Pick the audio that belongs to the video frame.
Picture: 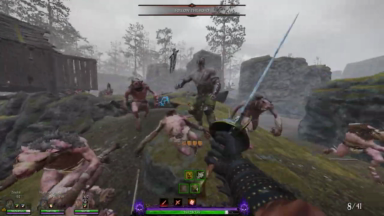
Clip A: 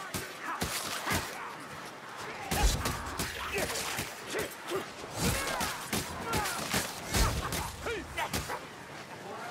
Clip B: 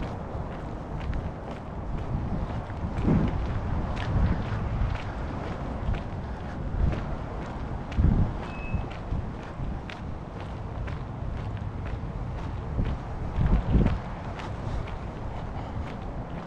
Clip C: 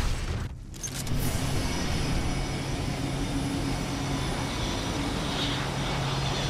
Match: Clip A